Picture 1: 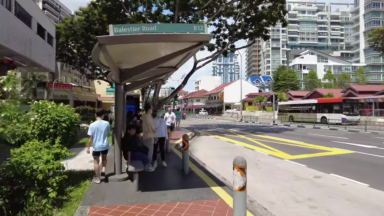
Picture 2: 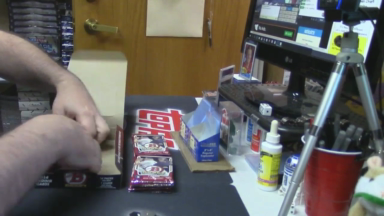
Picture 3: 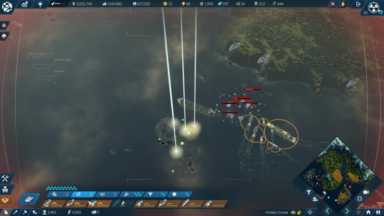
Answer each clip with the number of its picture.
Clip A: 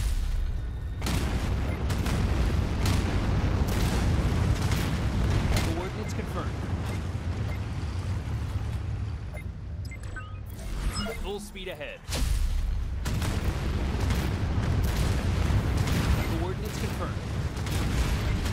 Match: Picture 3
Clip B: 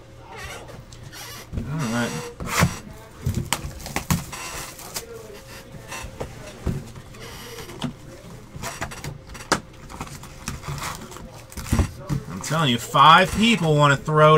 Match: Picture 2